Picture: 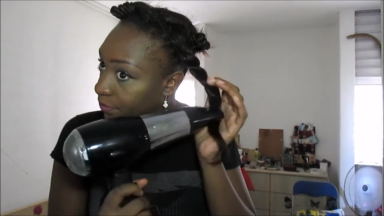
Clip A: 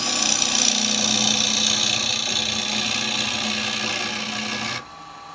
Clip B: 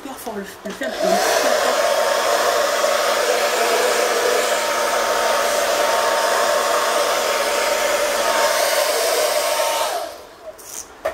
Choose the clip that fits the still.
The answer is B